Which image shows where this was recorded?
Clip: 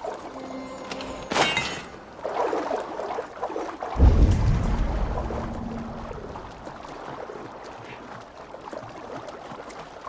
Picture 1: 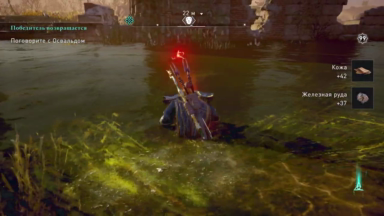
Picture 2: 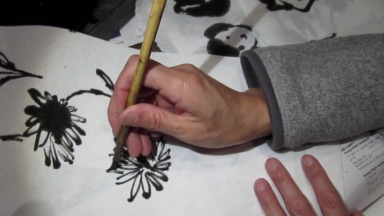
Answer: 1